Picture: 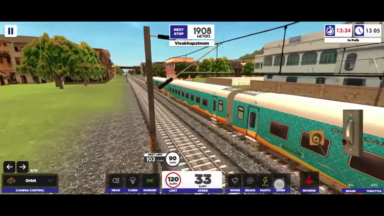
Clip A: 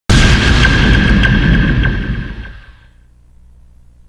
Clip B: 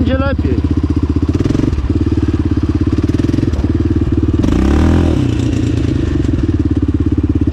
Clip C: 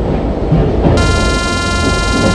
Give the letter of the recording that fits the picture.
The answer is C